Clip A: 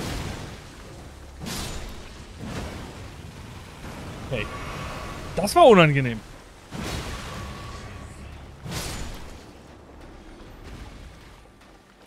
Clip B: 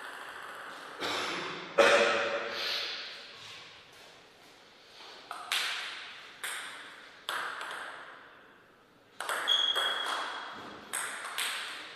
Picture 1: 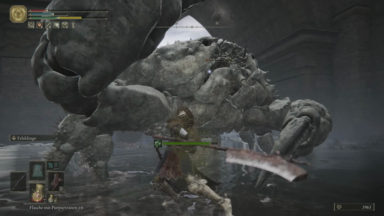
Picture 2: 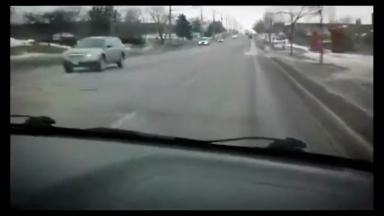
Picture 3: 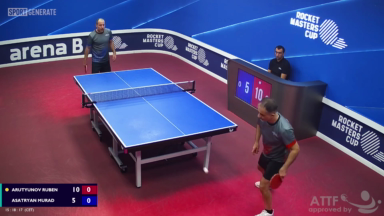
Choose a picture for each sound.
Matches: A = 1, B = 3